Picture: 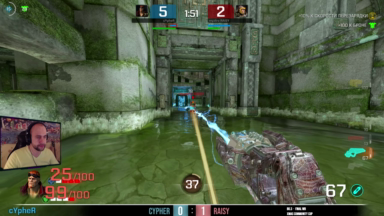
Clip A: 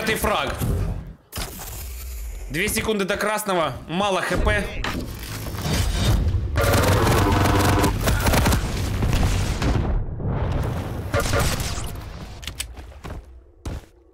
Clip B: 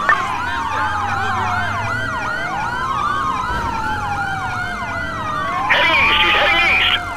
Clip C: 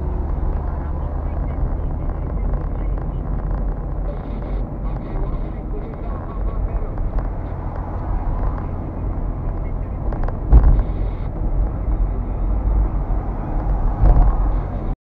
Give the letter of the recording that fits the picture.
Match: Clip A